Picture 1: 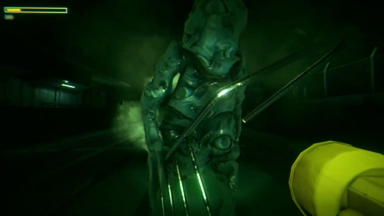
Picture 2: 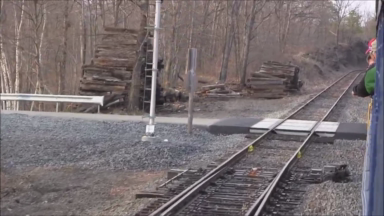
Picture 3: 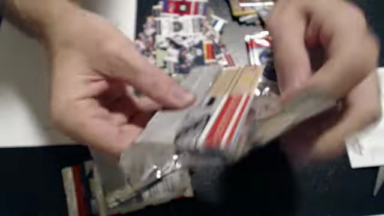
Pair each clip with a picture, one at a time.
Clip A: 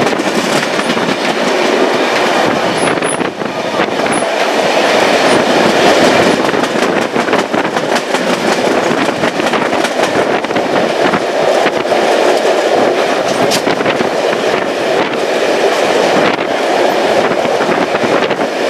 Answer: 2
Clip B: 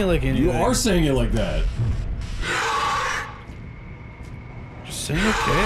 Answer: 1